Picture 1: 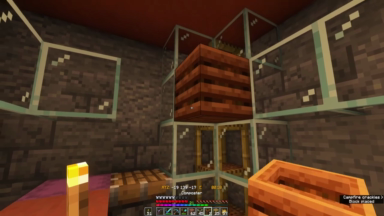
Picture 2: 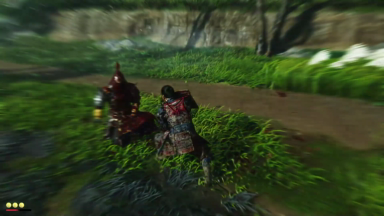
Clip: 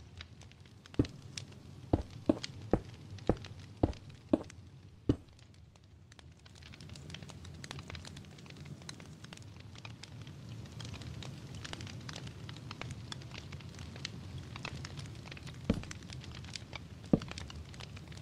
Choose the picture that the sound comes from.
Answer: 1